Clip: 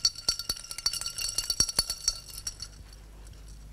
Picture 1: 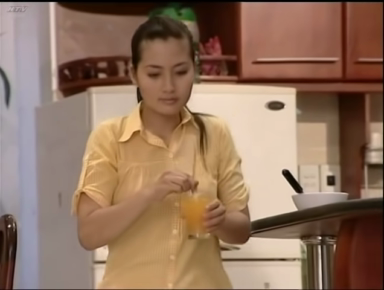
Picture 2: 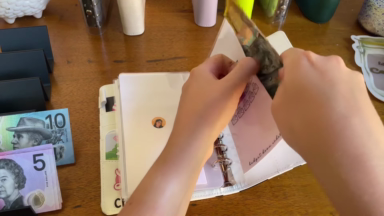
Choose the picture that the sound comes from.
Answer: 1